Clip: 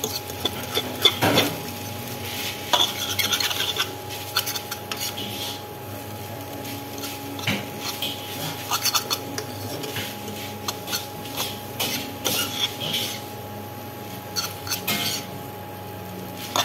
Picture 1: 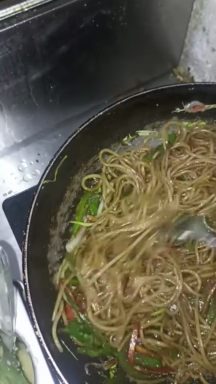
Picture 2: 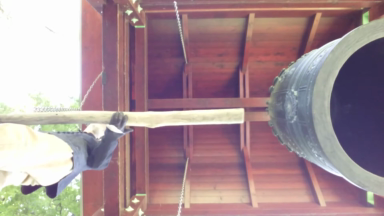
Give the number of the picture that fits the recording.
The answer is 1